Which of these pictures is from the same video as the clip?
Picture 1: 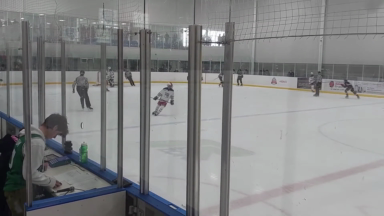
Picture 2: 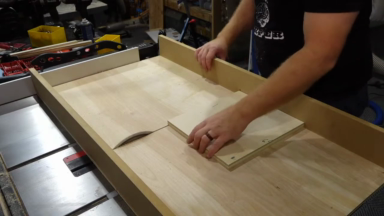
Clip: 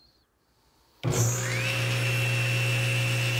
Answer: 2